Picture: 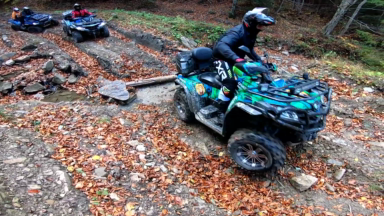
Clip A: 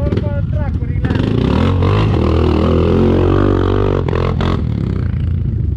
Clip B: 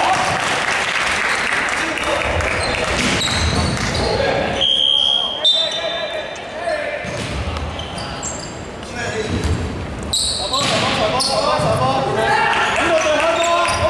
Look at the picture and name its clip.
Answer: A